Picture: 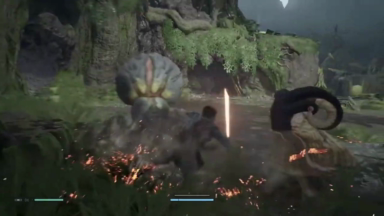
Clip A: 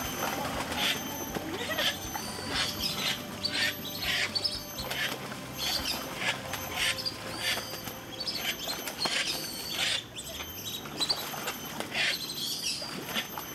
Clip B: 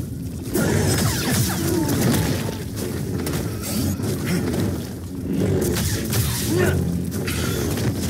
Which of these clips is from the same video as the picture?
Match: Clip B